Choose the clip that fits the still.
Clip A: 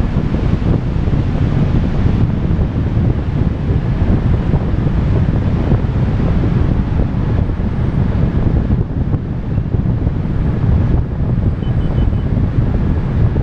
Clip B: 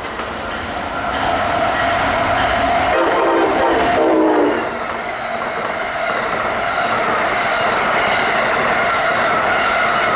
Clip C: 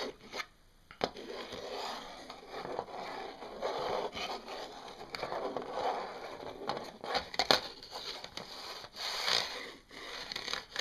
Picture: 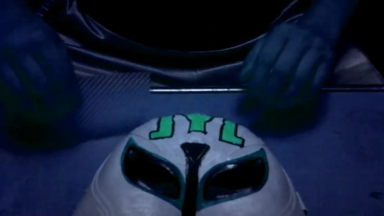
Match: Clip C